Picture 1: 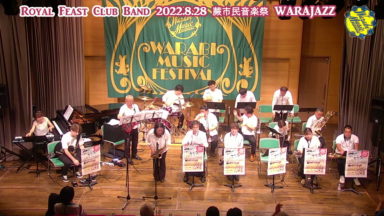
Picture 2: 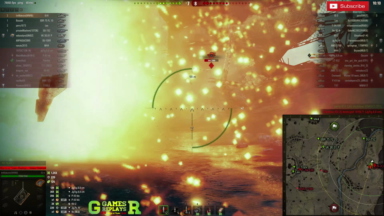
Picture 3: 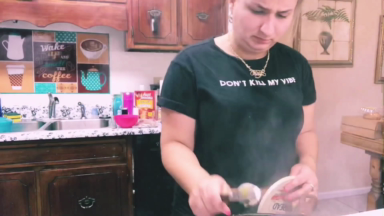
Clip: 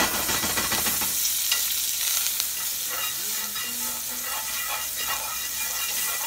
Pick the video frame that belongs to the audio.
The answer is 3